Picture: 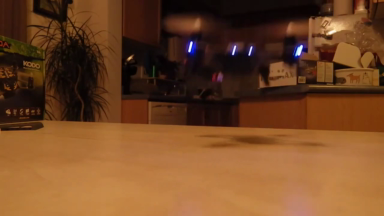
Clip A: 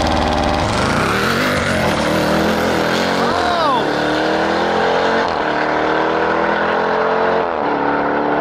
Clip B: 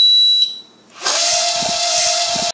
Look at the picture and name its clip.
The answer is B